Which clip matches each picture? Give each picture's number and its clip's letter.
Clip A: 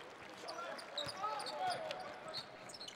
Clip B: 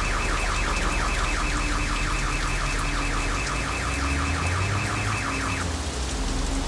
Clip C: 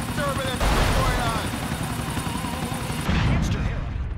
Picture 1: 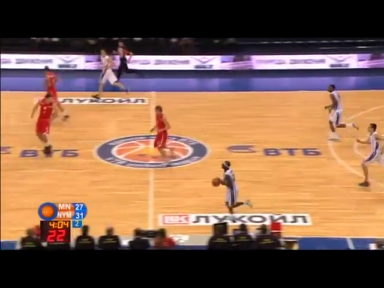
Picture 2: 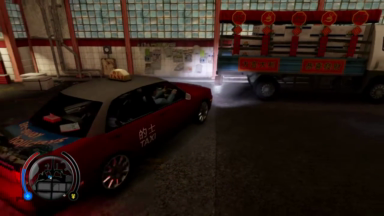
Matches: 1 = A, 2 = B